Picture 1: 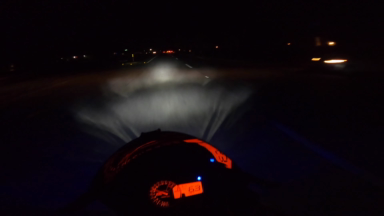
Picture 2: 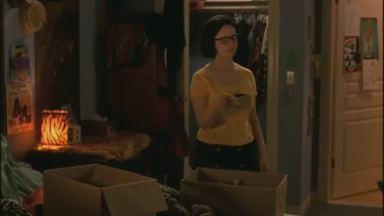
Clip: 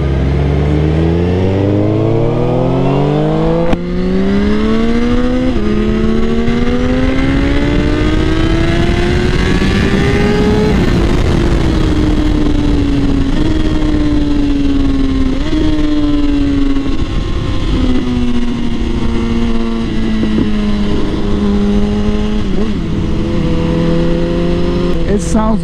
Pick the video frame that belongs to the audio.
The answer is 1